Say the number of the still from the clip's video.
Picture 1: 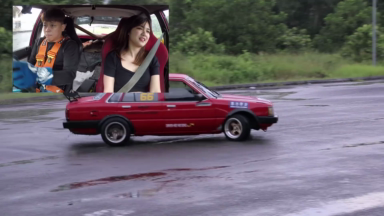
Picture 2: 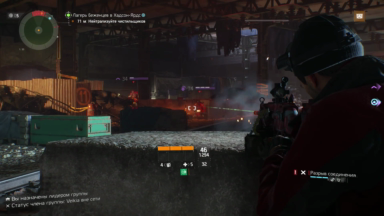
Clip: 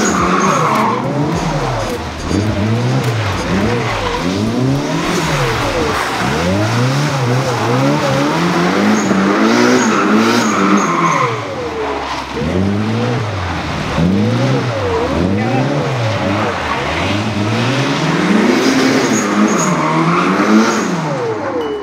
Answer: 1